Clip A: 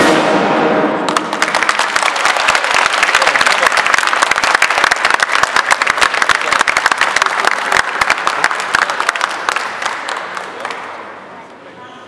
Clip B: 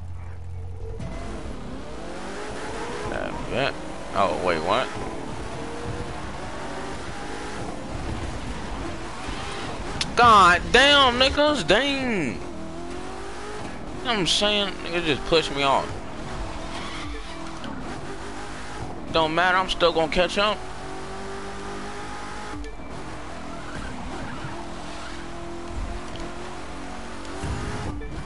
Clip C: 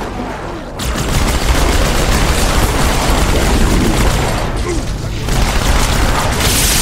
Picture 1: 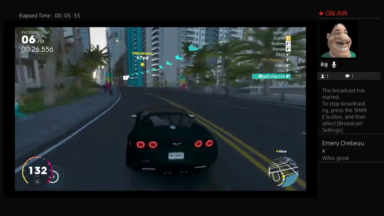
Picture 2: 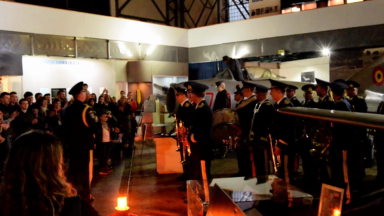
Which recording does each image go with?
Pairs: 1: B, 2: A